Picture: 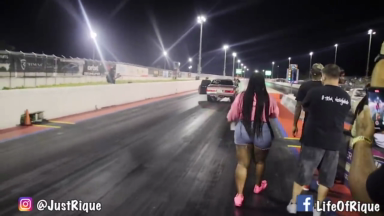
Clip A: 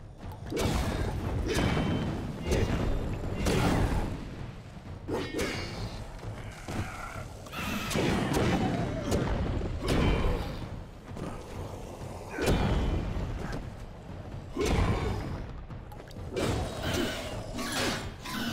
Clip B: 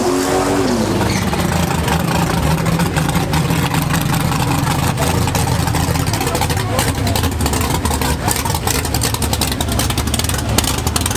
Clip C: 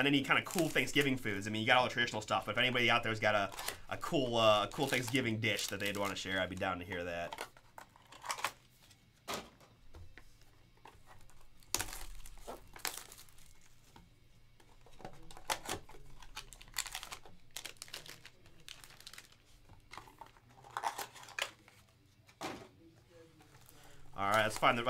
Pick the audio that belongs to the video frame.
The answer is B